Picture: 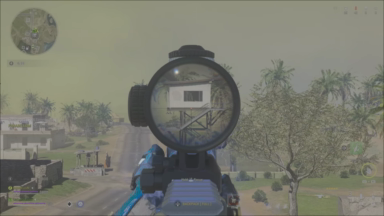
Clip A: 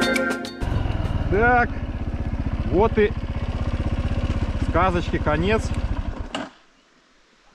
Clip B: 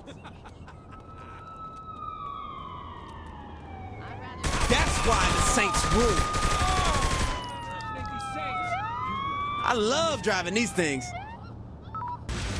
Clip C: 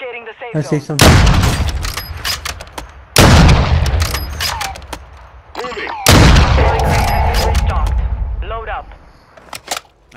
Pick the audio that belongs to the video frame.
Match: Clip C